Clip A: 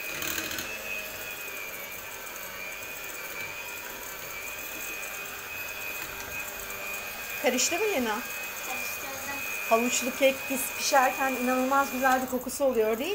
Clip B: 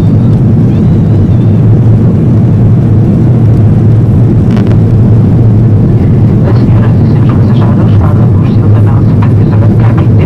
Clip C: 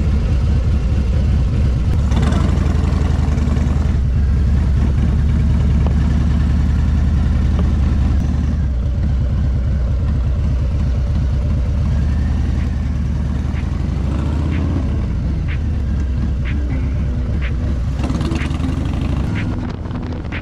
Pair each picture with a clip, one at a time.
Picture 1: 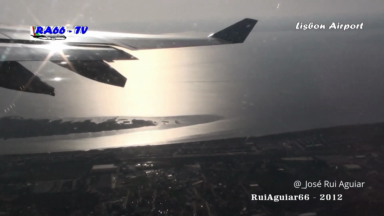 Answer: B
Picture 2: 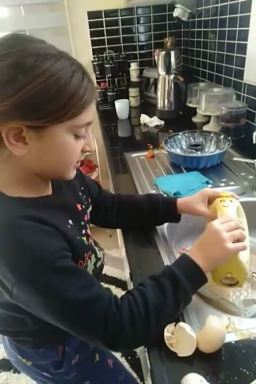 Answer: A